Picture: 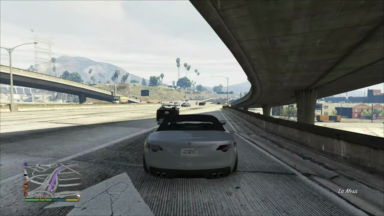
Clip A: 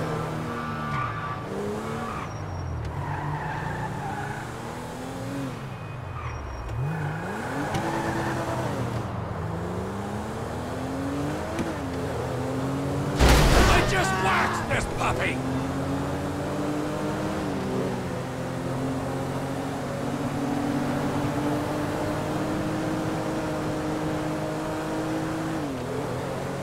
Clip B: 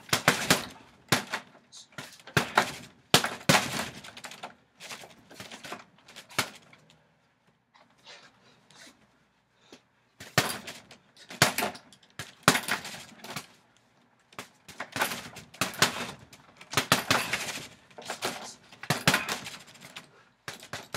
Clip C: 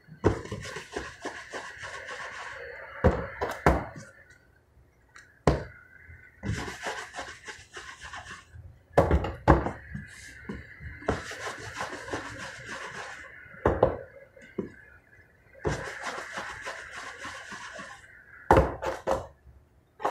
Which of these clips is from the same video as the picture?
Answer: A